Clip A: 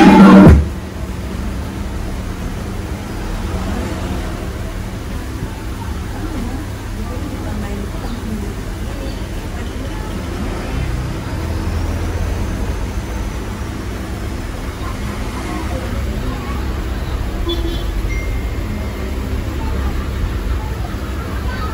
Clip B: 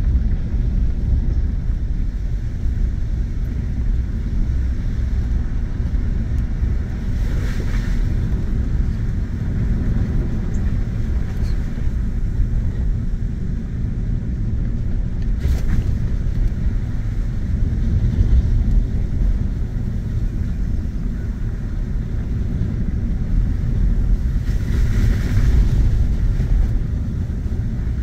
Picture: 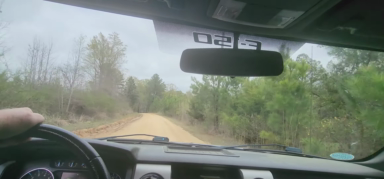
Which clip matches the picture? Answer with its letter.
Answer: B